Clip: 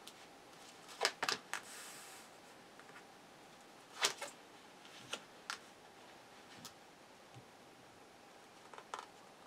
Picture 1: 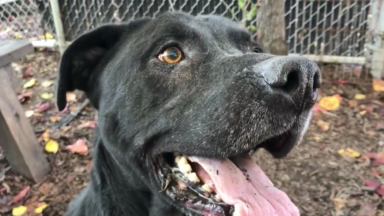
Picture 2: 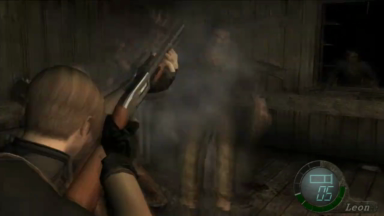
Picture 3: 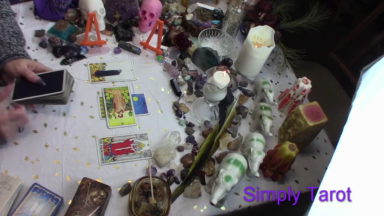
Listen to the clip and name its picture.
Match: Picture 3